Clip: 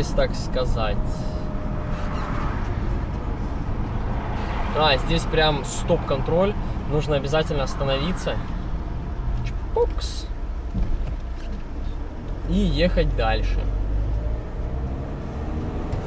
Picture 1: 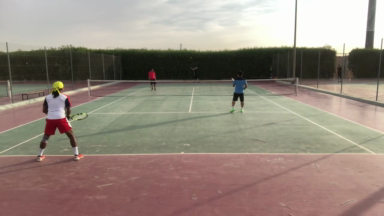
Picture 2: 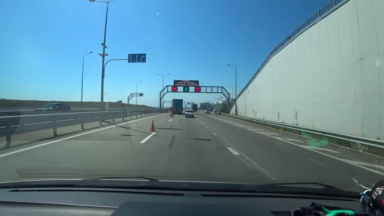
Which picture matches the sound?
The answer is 2